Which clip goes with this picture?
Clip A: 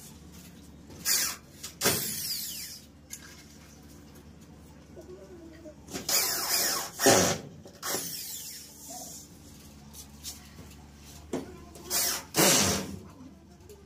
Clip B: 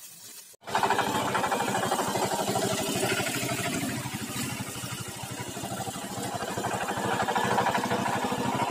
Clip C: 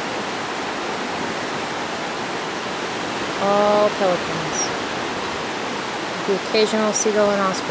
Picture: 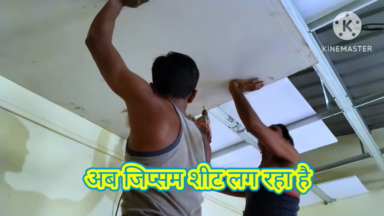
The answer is A